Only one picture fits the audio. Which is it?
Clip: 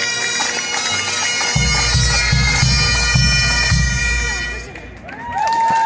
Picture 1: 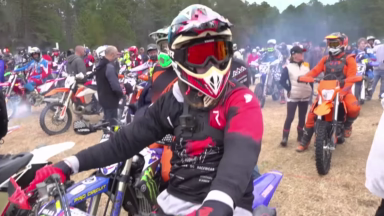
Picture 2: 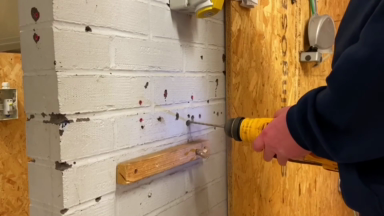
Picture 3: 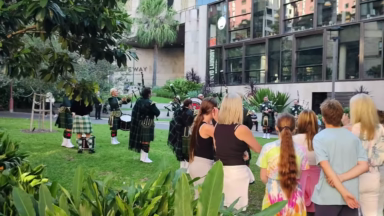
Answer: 3